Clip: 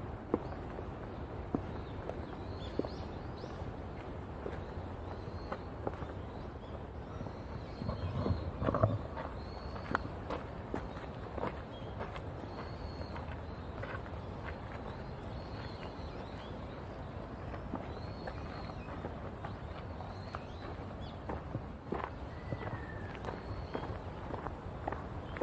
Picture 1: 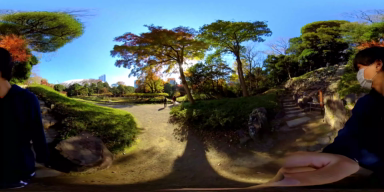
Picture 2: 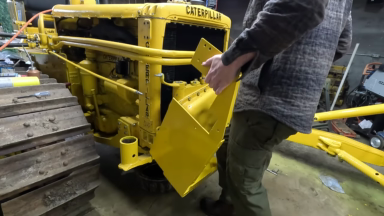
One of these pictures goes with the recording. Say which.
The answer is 1